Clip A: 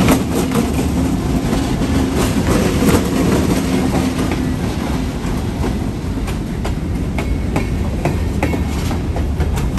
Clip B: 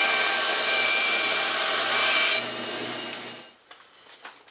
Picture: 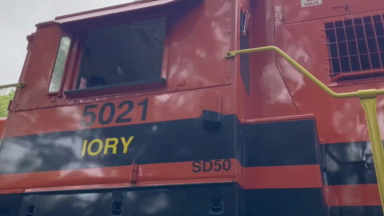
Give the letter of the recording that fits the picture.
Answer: A